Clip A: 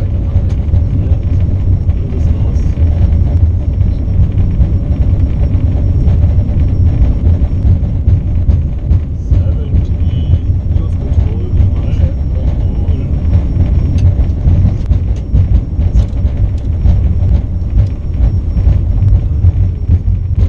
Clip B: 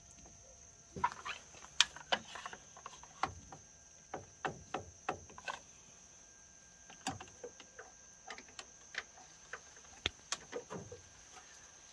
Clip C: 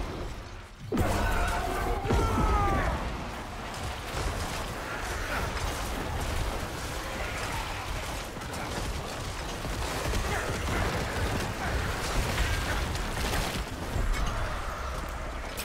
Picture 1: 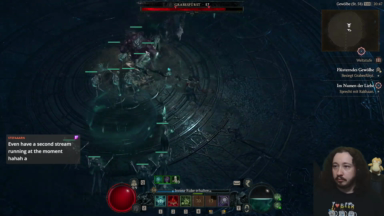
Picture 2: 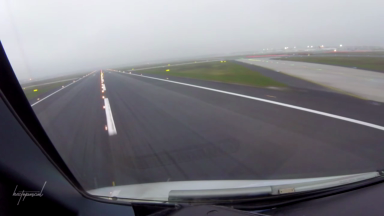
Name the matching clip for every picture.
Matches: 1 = C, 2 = A